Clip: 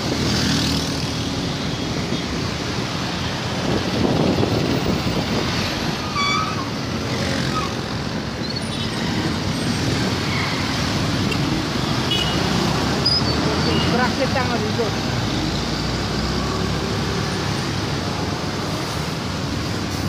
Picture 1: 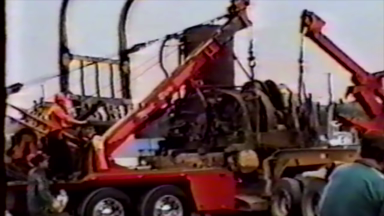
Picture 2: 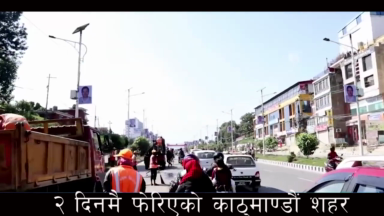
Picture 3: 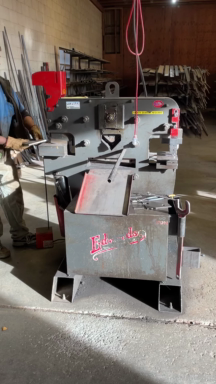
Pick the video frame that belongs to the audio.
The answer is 2